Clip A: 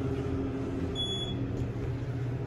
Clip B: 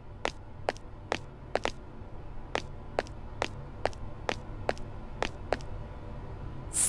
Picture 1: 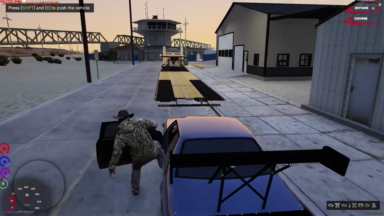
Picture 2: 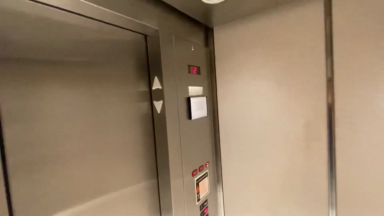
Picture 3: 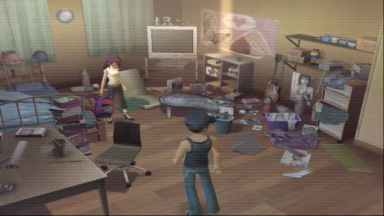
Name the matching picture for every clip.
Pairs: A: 2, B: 3